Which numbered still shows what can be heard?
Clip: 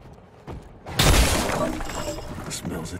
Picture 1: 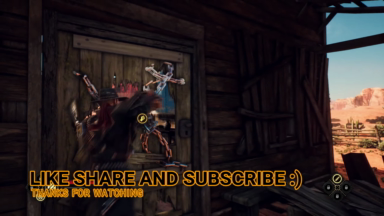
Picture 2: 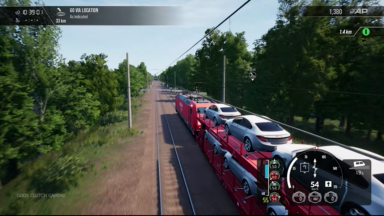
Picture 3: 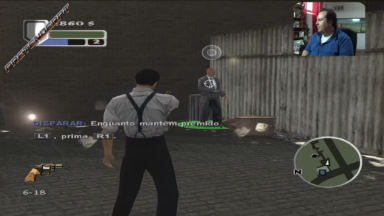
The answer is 1